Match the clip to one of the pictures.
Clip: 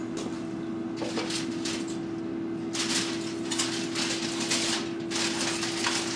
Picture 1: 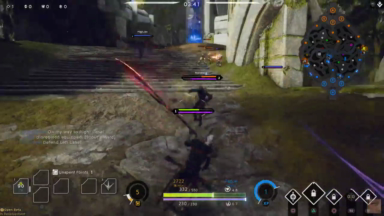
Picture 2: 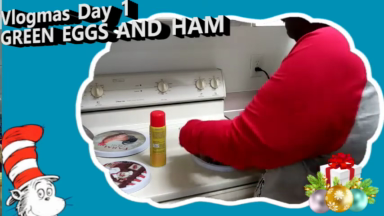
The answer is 2